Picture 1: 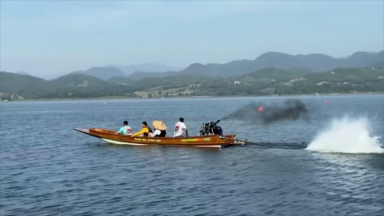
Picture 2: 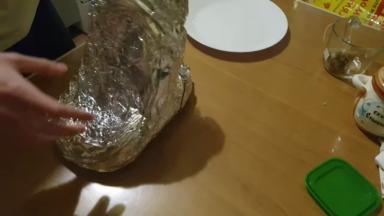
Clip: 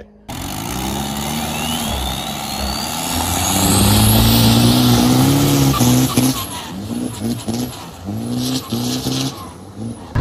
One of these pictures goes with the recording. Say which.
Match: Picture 1